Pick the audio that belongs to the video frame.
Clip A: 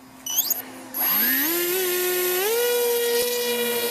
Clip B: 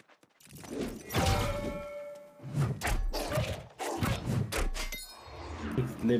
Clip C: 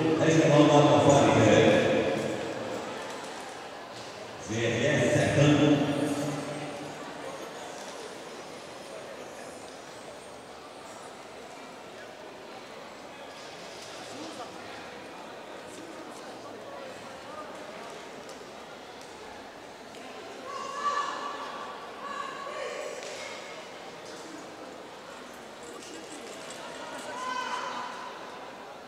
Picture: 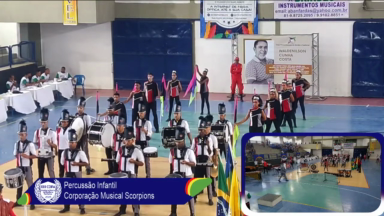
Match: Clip C